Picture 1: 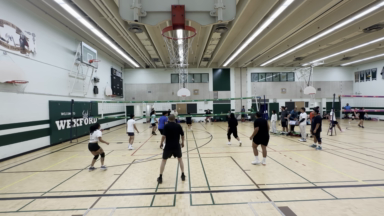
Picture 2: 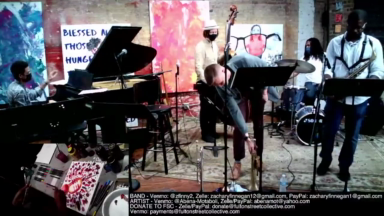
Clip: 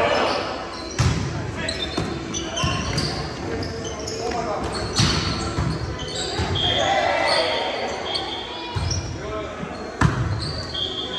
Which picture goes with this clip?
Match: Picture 1